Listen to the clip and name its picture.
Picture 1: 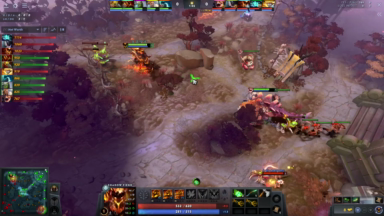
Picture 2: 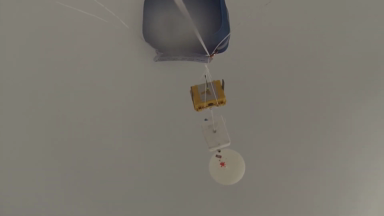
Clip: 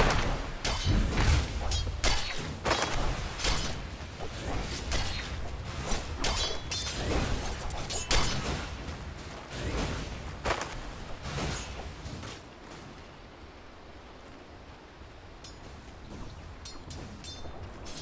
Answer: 1